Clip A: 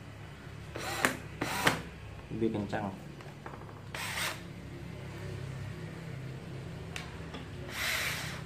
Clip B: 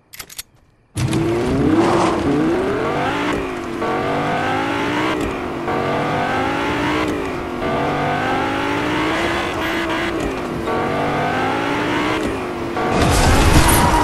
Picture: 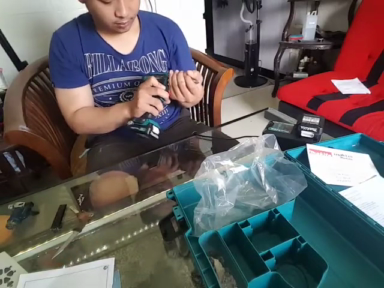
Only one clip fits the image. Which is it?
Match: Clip A